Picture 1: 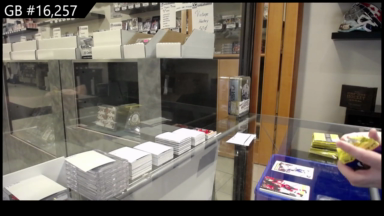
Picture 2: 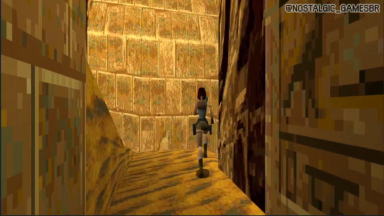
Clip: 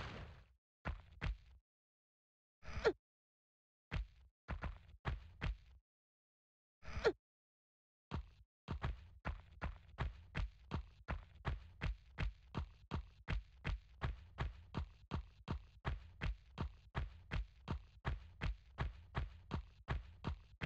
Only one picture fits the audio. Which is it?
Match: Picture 2